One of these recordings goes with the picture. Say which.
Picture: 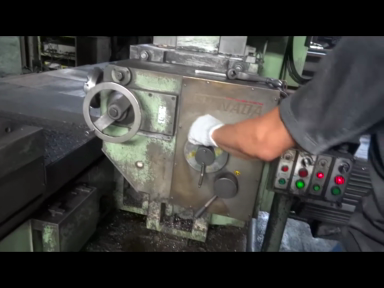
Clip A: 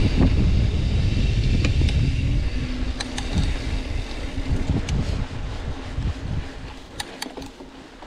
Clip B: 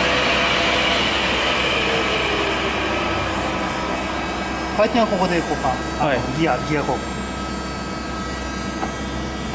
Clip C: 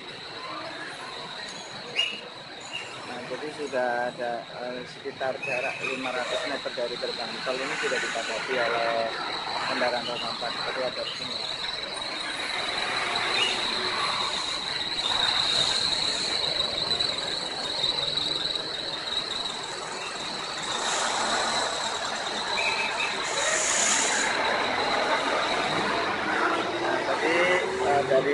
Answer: B